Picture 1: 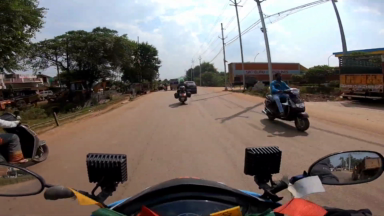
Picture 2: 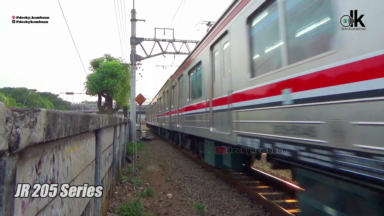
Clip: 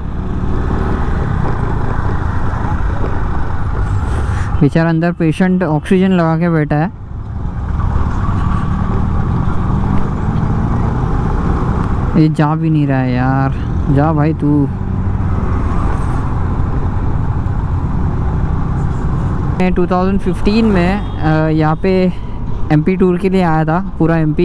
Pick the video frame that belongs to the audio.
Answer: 1